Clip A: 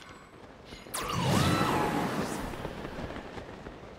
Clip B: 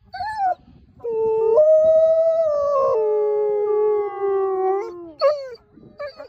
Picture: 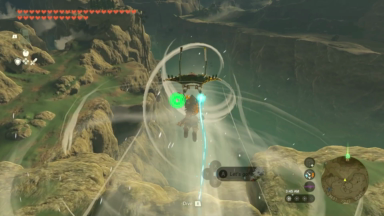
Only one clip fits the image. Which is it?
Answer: A